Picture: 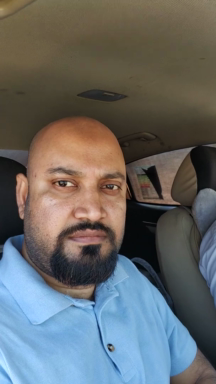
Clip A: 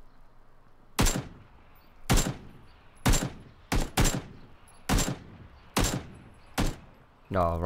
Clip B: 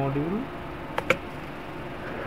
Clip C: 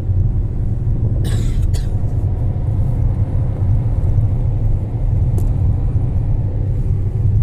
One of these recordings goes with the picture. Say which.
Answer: C